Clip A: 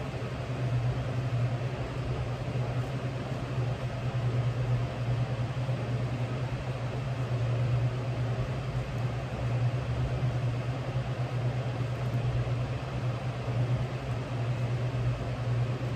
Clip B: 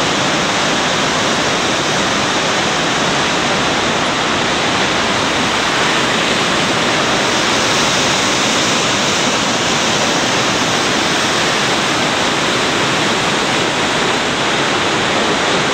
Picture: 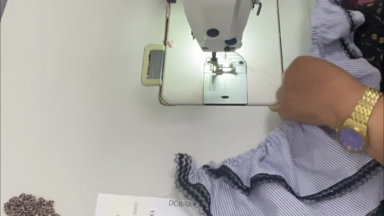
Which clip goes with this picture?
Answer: A